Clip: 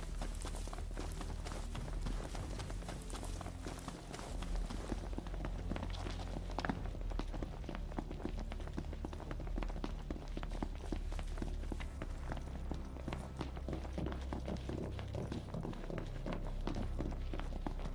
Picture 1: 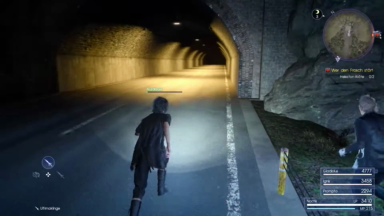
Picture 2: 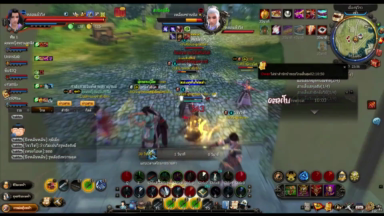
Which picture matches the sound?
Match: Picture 1